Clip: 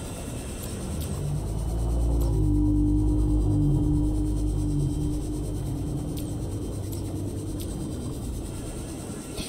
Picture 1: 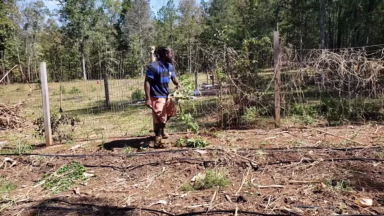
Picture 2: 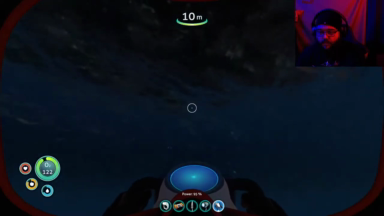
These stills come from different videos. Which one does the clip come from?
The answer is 2